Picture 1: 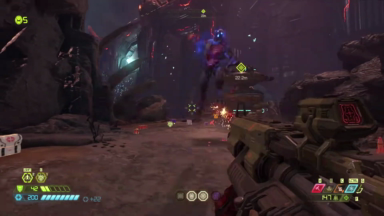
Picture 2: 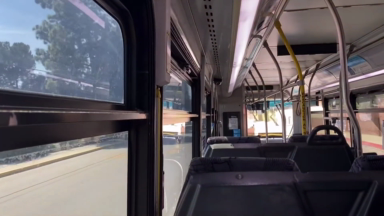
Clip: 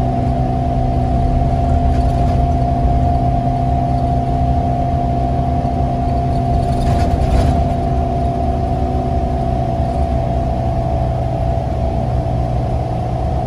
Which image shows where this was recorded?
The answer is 2